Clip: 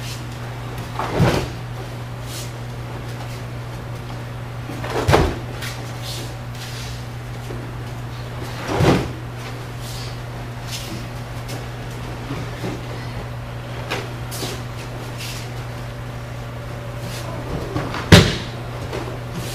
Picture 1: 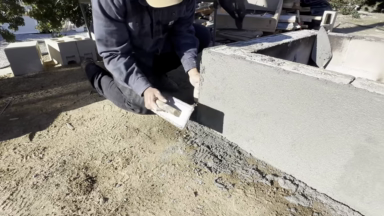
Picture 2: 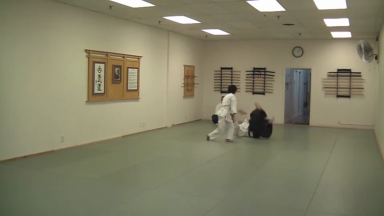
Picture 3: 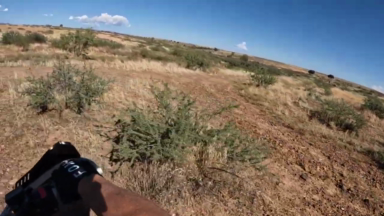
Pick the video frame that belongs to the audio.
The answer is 2